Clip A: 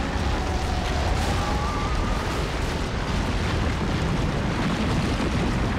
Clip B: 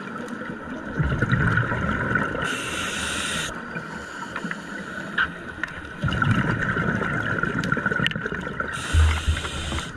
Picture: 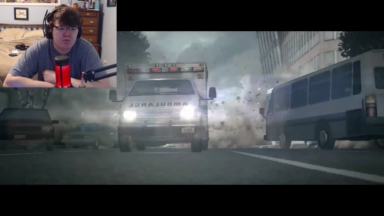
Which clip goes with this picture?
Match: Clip A